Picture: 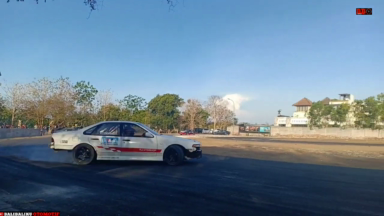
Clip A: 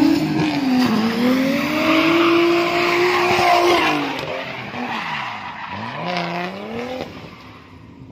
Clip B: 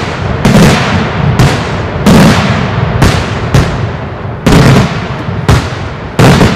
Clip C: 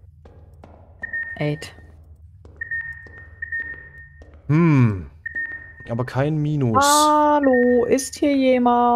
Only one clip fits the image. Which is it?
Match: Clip A